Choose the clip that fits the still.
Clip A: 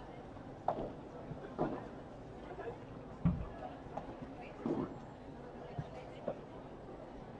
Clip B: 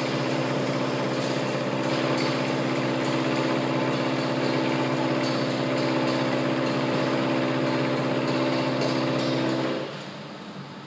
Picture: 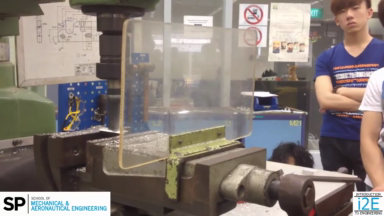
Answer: B